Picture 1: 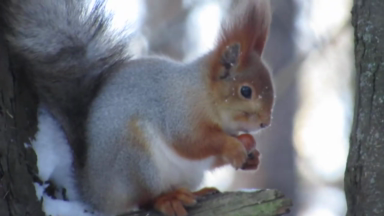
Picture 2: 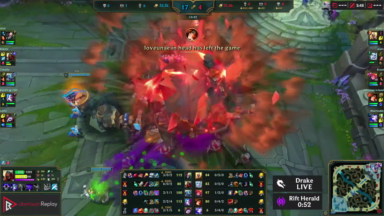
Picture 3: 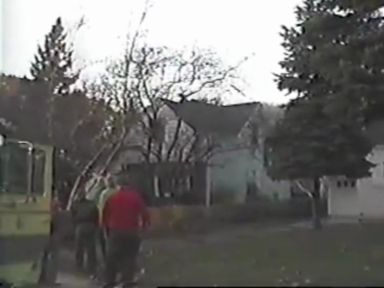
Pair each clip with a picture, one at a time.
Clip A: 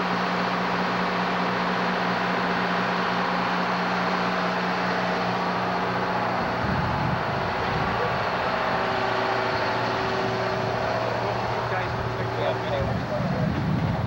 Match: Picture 3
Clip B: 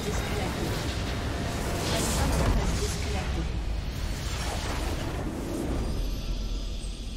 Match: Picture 2